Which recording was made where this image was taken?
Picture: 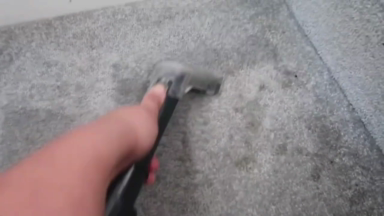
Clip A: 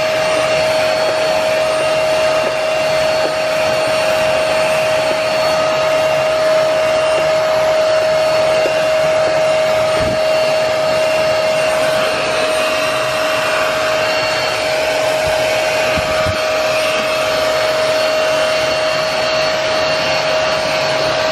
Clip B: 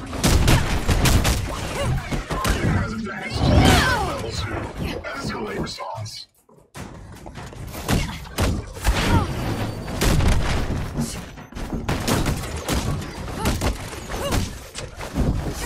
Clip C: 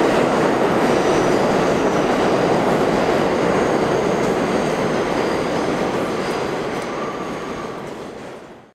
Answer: A